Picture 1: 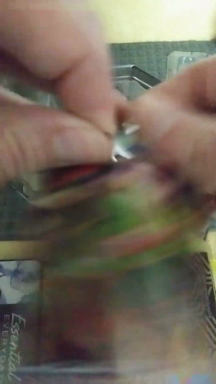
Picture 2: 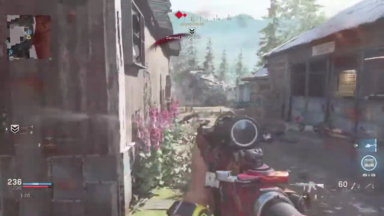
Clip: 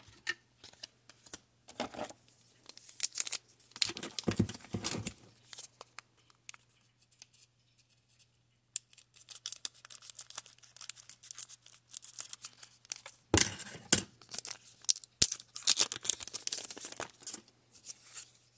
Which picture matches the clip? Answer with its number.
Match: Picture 1